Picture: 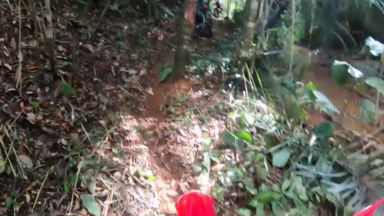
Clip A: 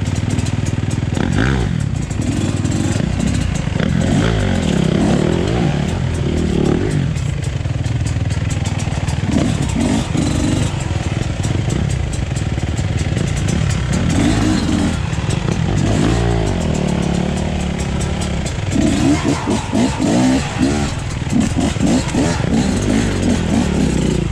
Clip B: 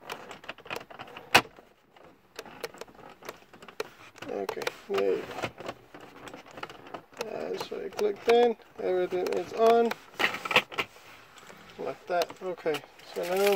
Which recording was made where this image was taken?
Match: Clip A